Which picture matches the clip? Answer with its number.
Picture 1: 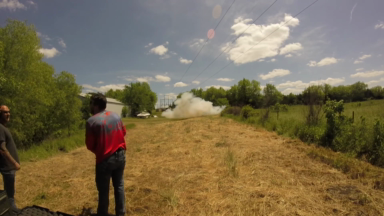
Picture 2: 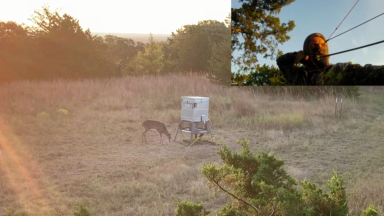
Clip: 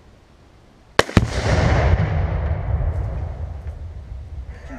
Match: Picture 1